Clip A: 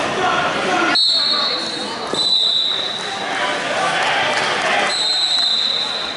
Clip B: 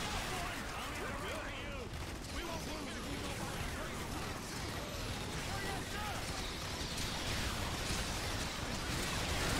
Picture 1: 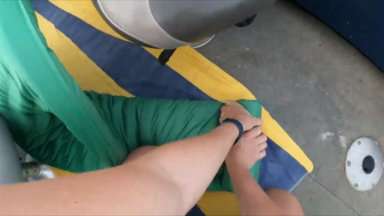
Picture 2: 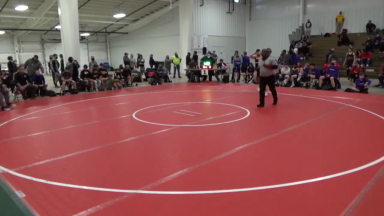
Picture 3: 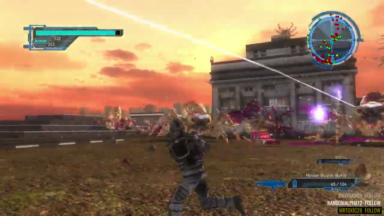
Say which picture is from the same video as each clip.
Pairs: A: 2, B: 3